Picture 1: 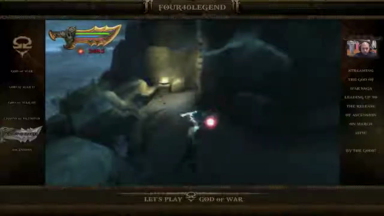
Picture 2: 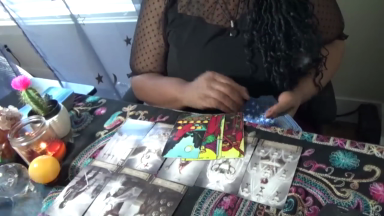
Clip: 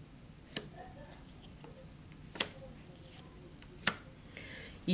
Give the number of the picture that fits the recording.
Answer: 2